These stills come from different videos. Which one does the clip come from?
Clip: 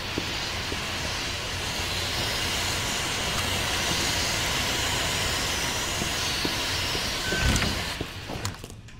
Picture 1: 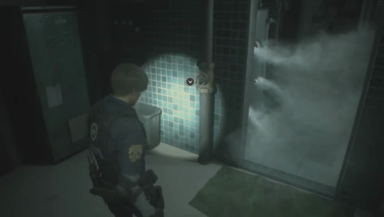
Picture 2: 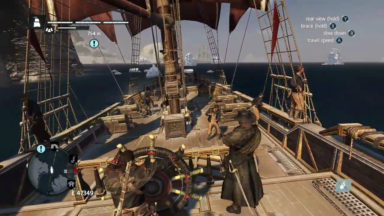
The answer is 1